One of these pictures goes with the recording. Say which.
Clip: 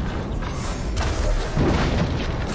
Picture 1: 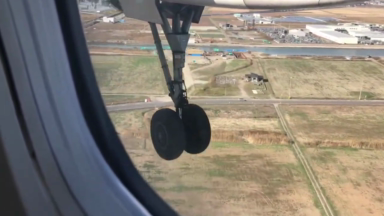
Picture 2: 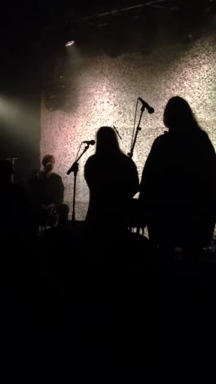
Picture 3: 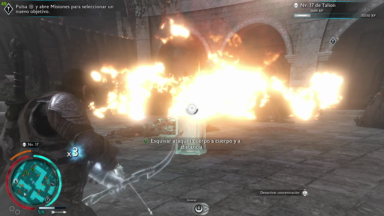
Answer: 3